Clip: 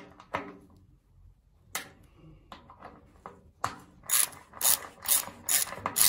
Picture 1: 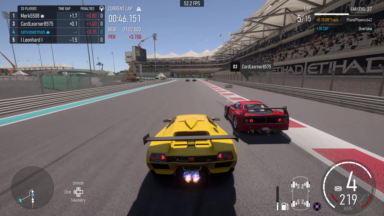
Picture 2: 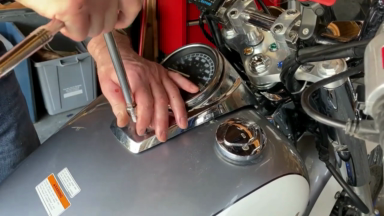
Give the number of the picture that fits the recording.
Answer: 2